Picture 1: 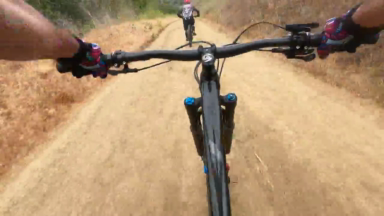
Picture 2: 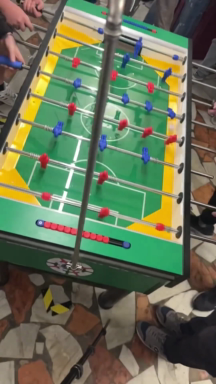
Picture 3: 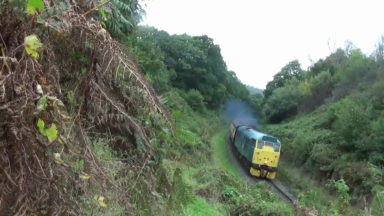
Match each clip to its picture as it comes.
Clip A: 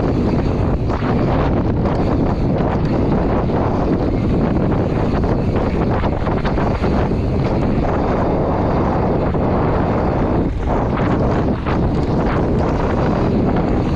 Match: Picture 1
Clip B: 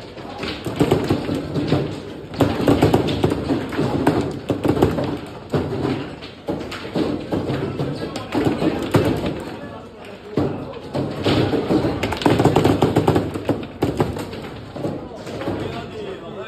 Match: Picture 2